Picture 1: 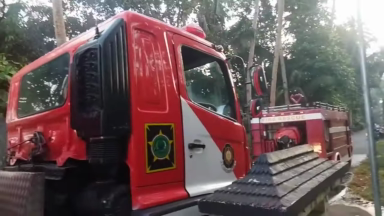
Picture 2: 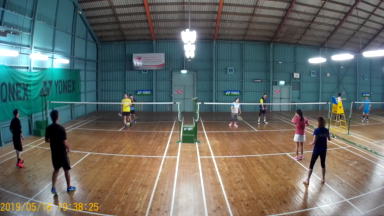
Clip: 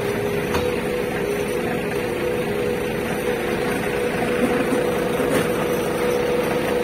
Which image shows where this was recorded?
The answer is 1